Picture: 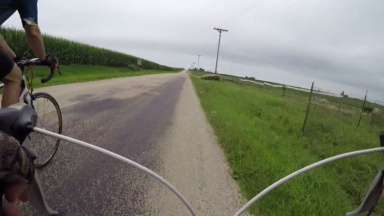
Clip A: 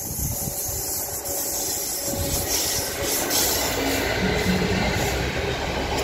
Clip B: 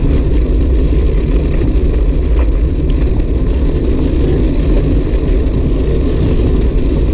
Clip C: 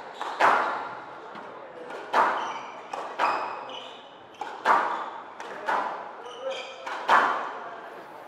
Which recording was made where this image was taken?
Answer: B